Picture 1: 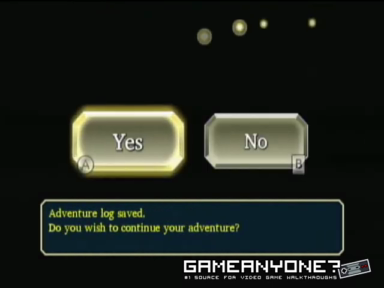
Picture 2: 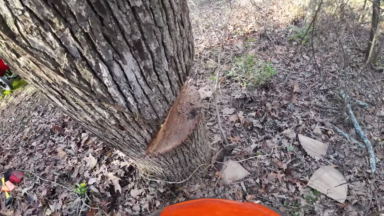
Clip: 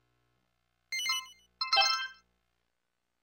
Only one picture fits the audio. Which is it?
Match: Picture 1